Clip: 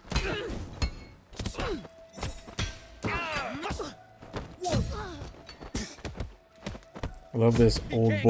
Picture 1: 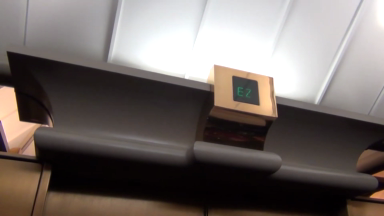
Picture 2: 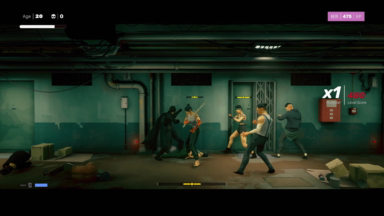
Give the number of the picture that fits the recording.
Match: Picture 2